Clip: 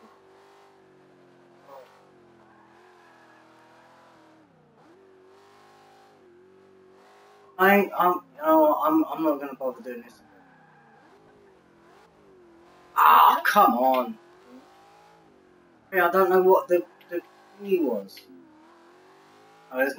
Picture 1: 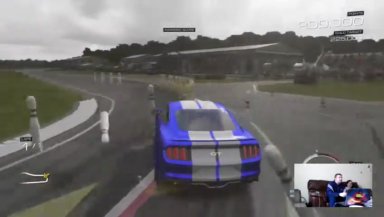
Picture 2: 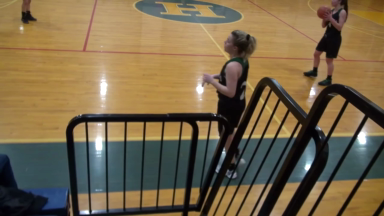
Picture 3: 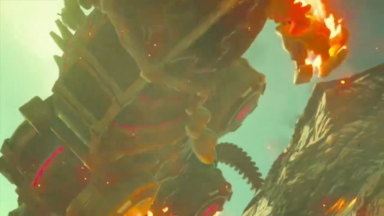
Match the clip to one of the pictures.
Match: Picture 1